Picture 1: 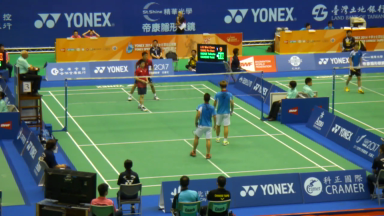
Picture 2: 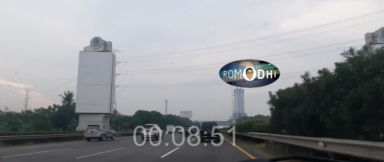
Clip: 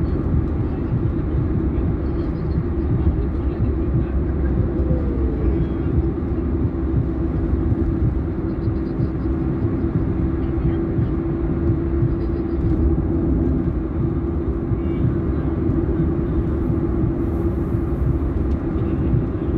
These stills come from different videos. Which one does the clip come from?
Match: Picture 2